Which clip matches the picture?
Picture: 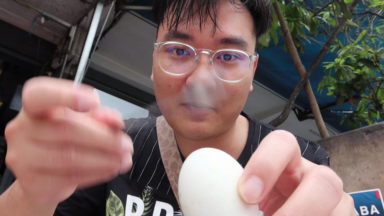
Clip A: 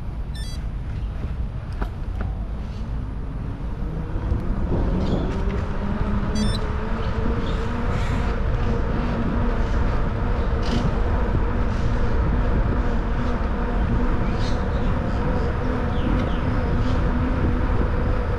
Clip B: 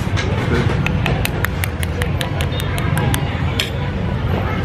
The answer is B